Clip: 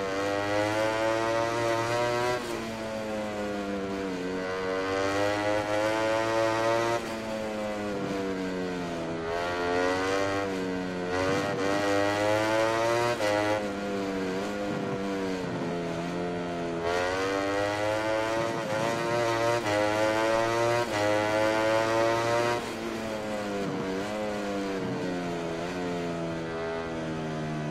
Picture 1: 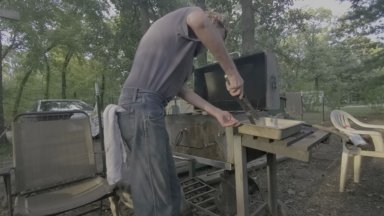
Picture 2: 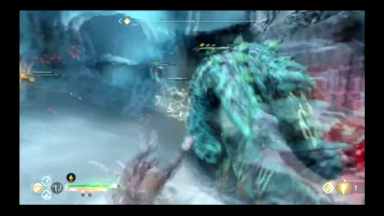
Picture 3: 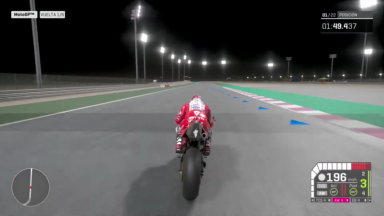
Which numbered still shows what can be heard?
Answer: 3